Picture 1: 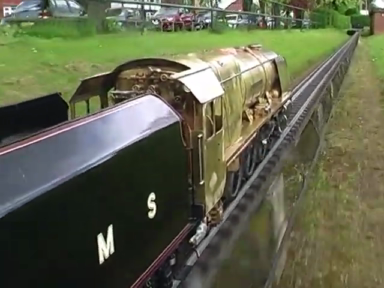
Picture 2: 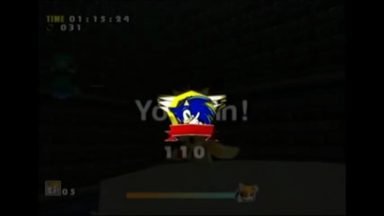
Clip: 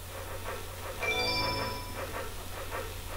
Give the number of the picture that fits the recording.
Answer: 2